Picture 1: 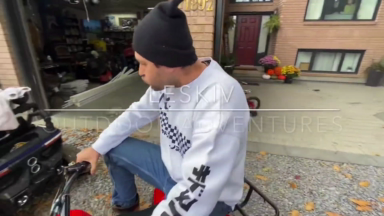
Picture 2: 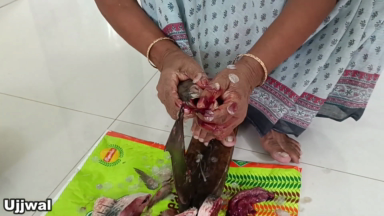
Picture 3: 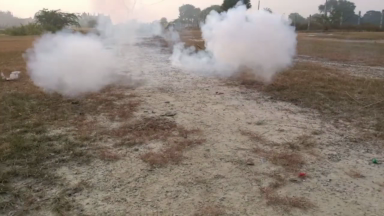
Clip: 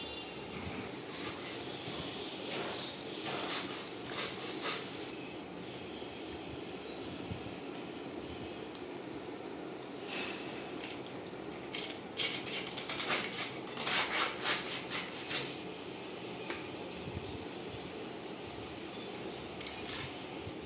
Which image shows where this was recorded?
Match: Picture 2